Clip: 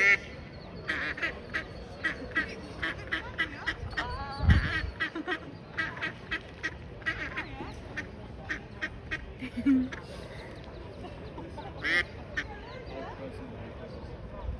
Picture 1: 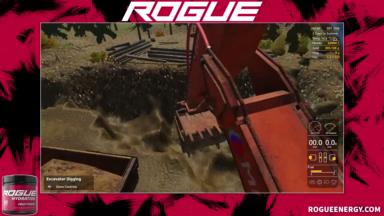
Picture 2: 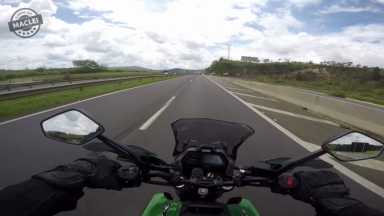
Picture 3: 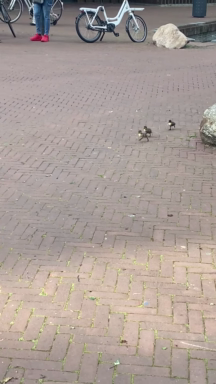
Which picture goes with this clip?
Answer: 3